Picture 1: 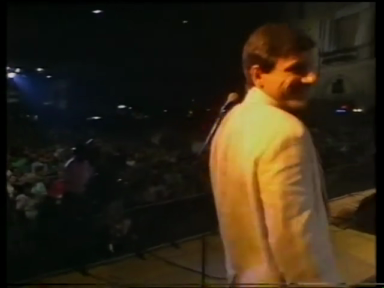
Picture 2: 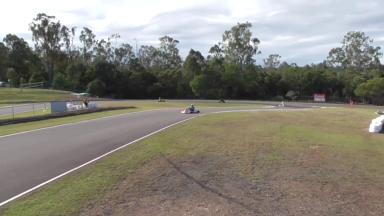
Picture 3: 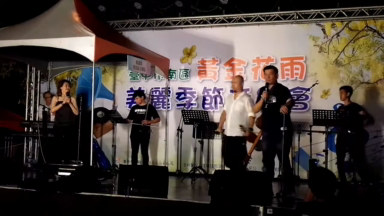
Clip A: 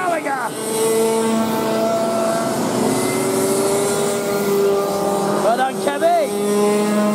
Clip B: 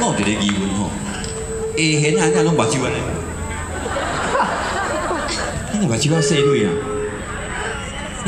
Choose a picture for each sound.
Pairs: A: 2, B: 3